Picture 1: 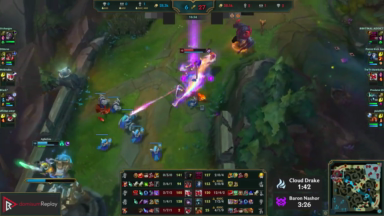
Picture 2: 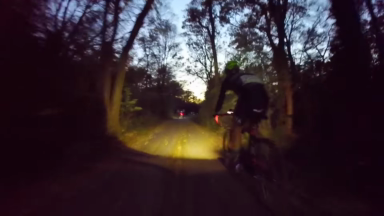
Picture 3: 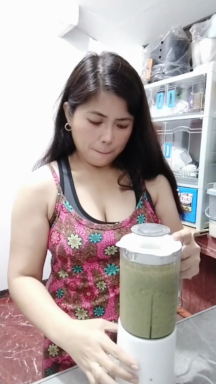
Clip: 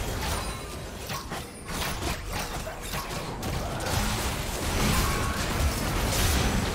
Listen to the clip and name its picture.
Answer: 1